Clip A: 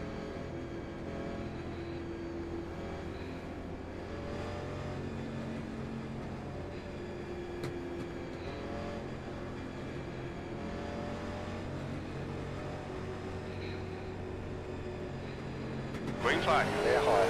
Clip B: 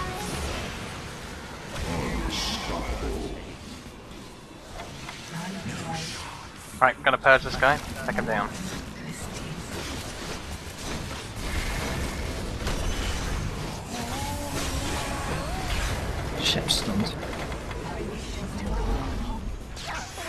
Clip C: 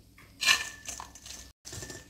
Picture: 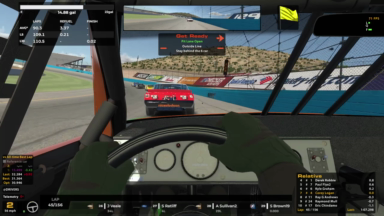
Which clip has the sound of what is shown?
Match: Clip A